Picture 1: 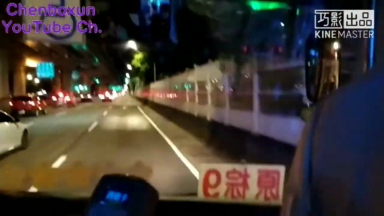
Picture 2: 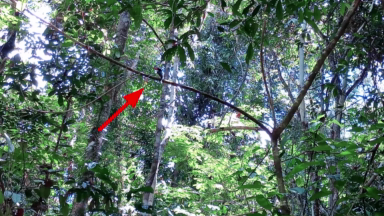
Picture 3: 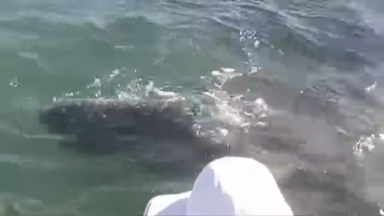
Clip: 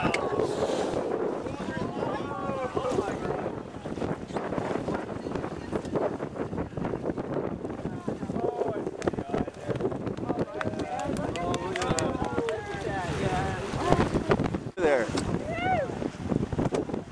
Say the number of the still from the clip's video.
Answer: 3